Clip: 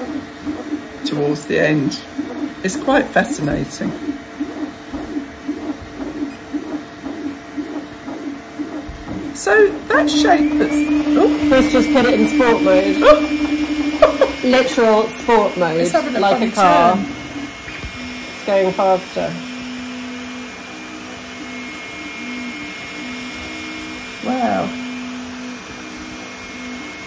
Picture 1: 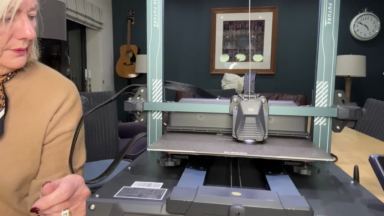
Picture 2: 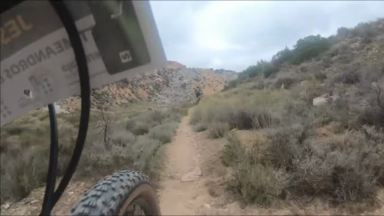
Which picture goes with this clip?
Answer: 1